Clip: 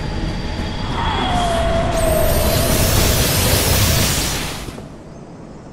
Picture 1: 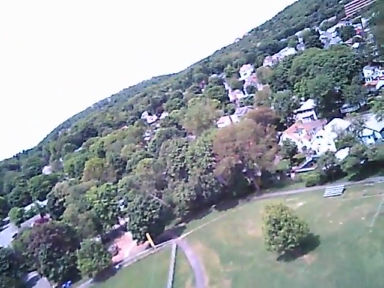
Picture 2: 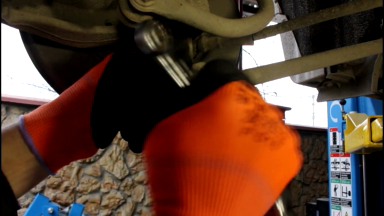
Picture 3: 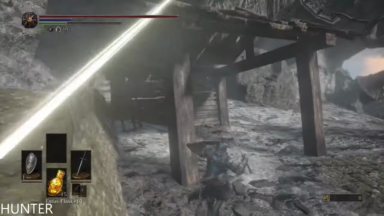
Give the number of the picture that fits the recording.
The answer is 3